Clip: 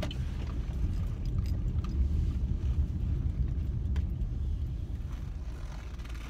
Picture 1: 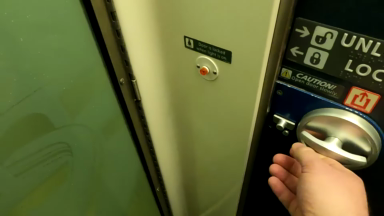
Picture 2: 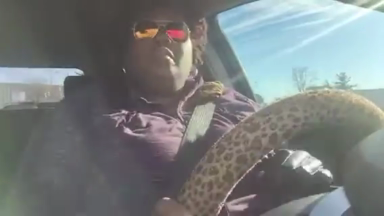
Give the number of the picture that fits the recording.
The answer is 2